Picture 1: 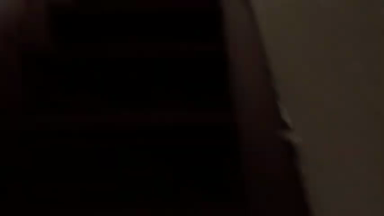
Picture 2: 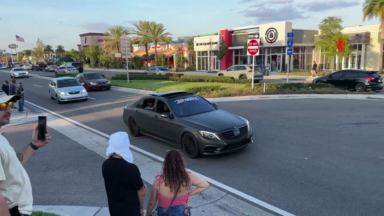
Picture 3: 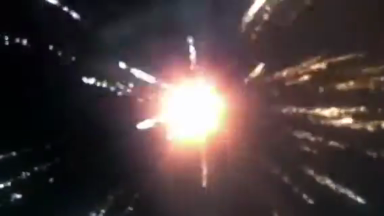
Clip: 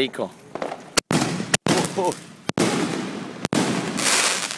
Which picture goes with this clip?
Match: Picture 3